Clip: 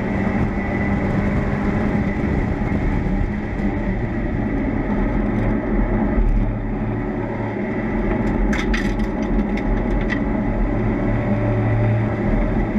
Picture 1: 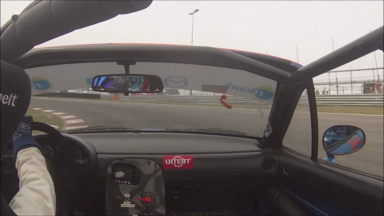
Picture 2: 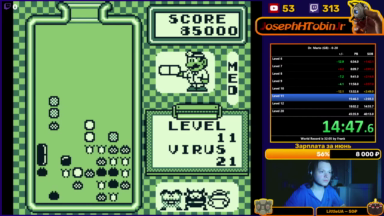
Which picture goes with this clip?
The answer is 1